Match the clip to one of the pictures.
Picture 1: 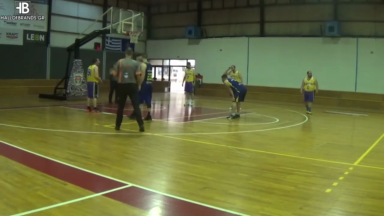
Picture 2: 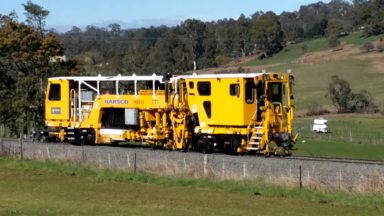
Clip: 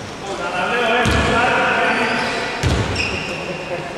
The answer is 1